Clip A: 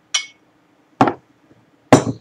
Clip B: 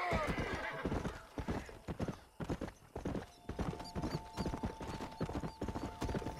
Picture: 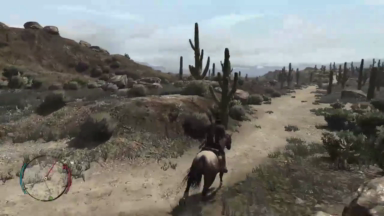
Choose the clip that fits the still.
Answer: B